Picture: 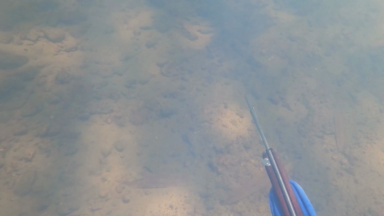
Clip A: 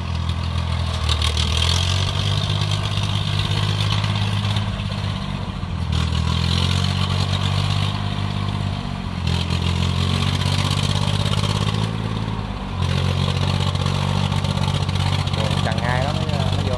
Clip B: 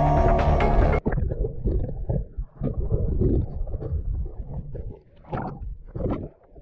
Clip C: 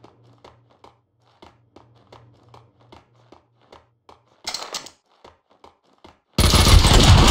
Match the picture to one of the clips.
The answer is B